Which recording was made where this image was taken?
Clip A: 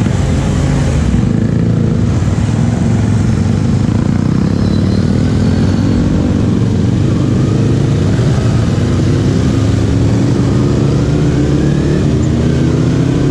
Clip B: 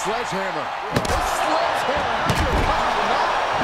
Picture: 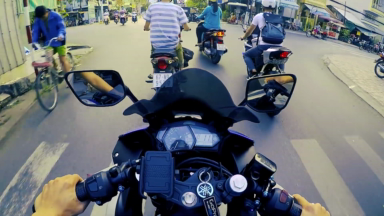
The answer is A